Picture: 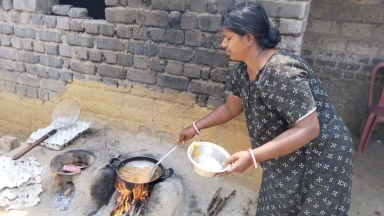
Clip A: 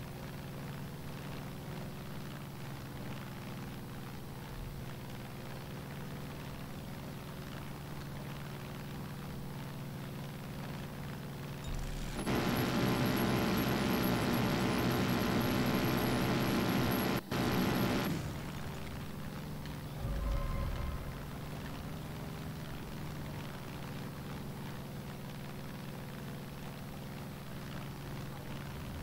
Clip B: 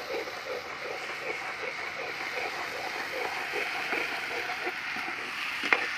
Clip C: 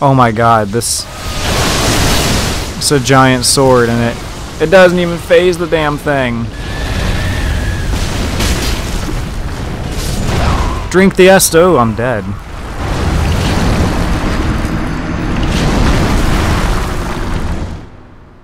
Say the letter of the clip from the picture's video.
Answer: B